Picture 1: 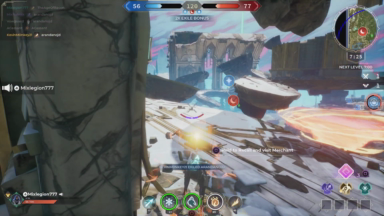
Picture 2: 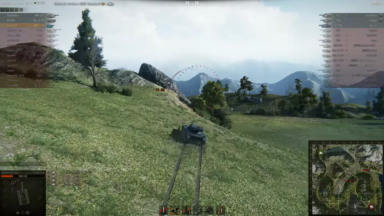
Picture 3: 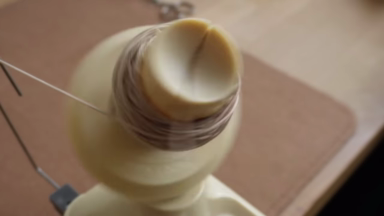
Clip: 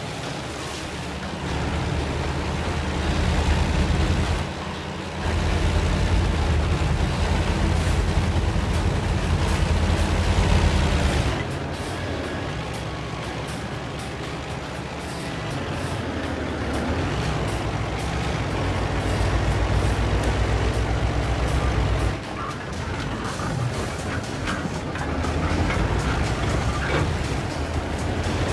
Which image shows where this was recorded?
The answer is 2